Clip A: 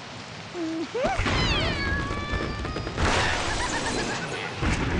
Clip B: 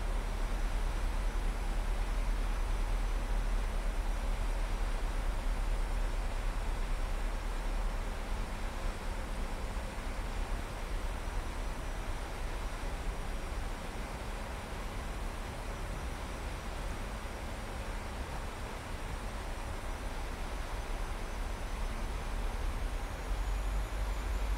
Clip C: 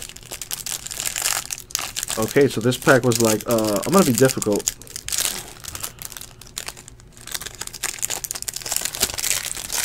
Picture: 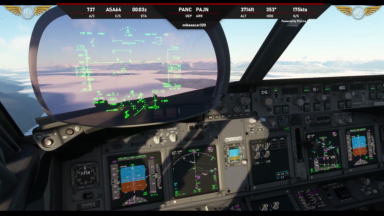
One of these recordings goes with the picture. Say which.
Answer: B